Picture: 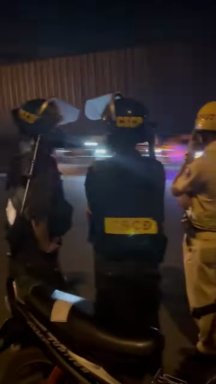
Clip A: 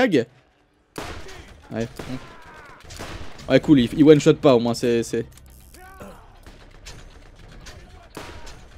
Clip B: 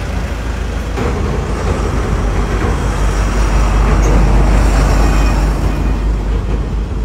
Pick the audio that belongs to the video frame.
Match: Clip B